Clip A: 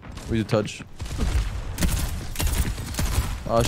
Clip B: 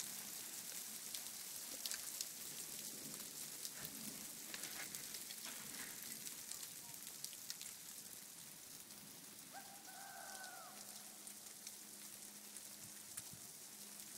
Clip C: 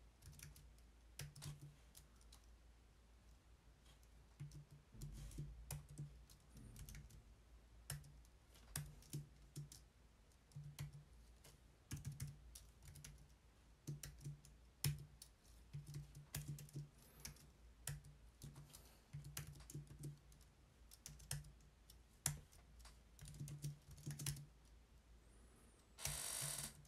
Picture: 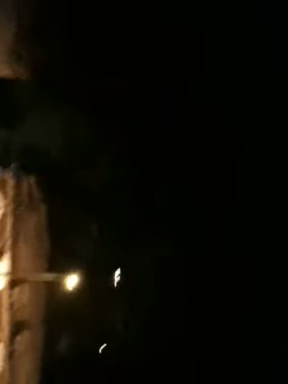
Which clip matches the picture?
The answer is B